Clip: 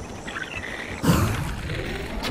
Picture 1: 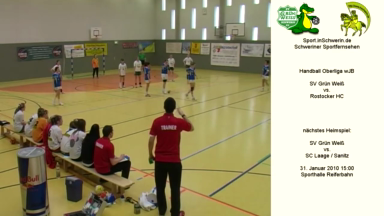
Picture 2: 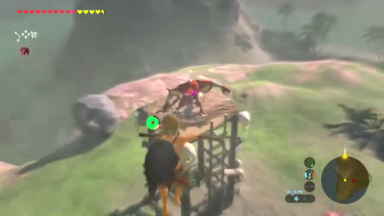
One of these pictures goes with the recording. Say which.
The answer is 2